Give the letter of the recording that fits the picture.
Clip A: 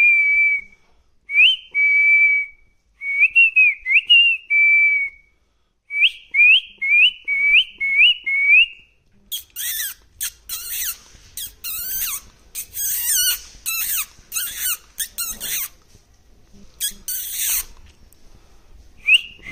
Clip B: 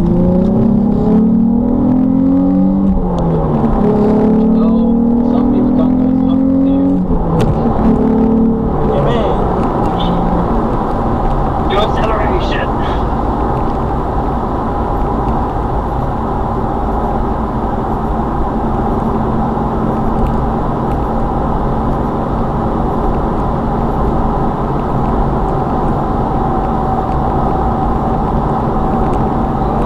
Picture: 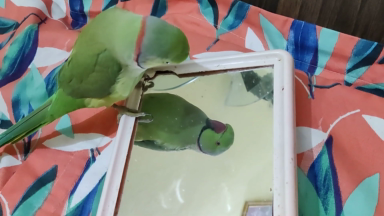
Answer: A